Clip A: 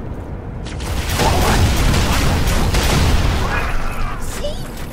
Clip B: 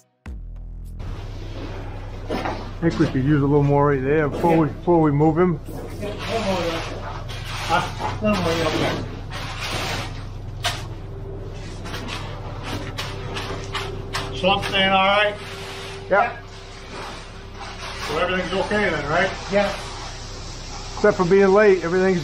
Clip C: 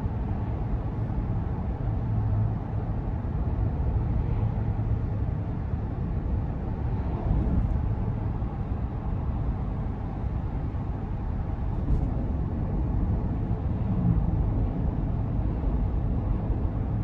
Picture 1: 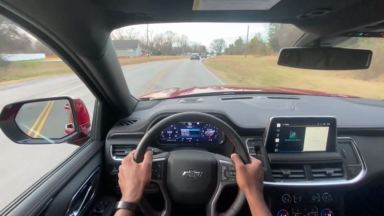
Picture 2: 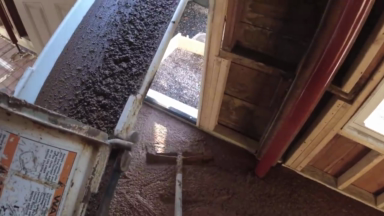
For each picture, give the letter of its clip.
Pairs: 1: C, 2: B